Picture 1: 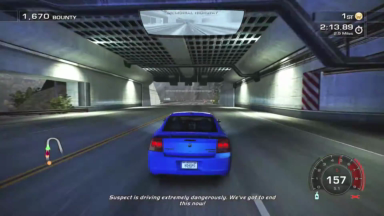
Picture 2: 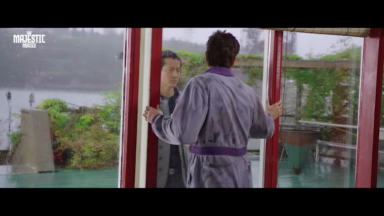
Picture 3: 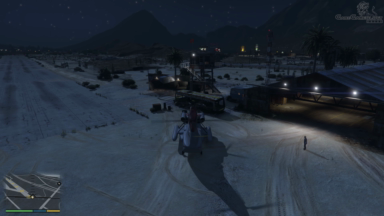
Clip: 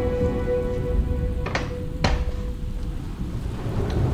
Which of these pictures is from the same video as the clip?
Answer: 2